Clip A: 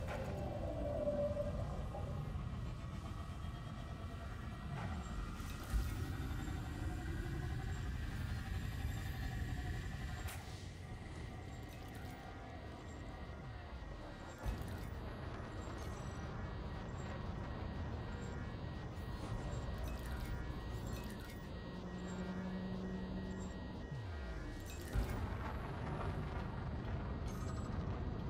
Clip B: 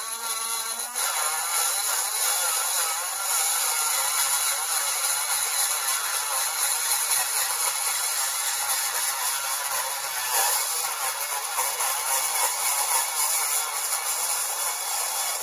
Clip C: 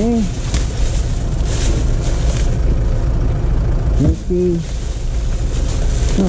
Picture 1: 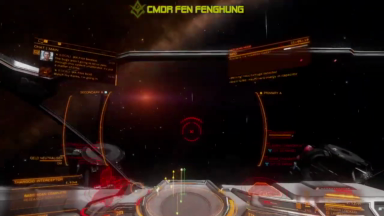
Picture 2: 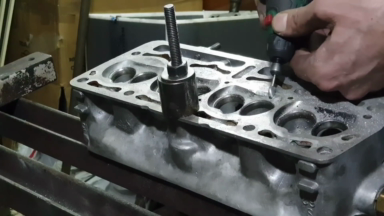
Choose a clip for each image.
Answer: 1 A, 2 B